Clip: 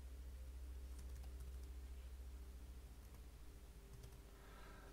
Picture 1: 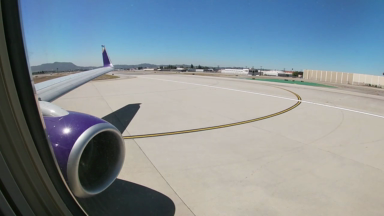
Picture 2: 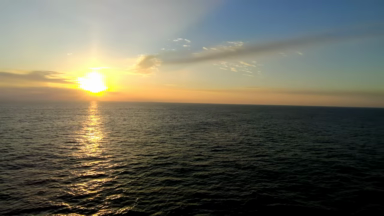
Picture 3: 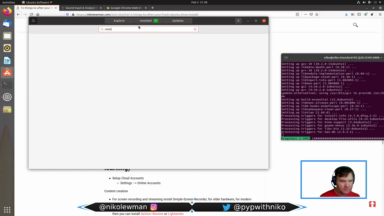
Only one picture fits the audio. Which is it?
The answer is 3